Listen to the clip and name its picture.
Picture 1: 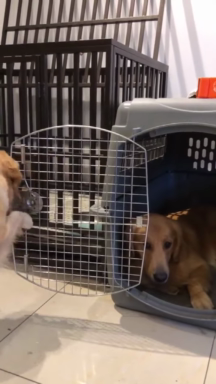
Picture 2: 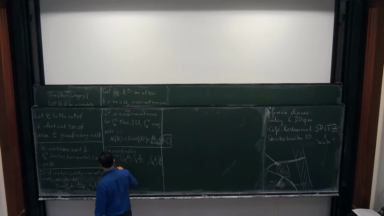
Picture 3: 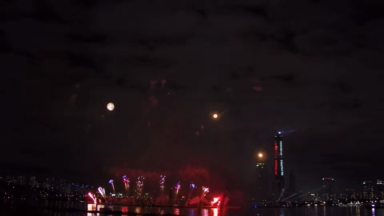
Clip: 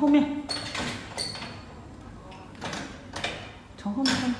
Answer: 1